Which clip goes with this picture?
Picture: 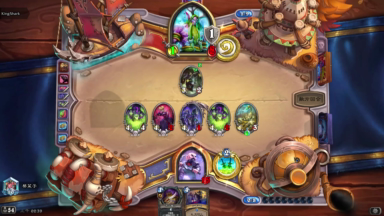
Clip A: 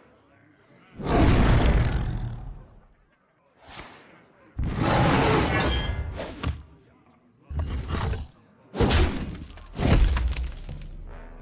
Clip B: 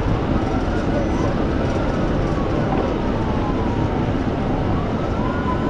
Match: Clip A